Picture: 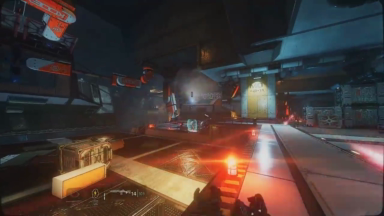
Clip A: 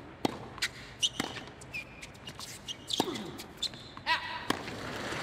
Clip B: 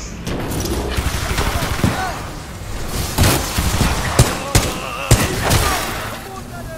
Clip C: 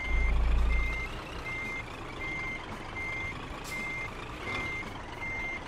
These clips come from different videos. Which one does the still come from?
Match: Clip B